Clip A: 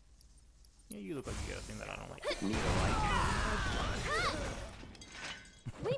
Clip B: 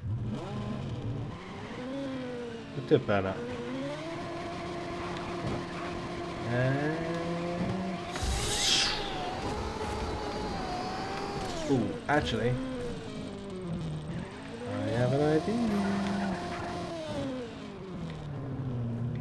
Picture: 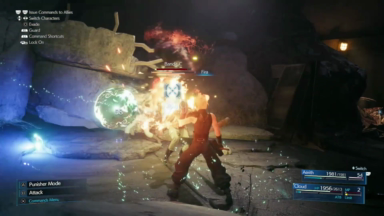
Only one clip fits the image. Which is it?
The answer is A